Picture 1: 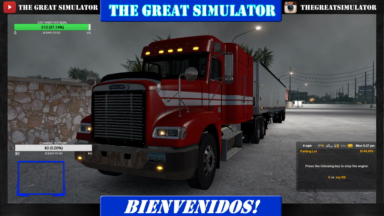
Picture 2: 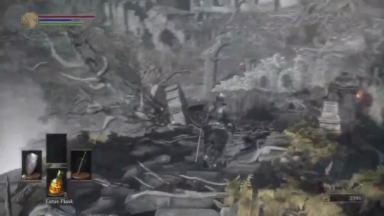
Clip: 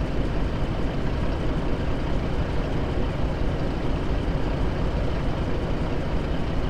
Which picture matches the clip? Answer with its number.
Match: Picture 1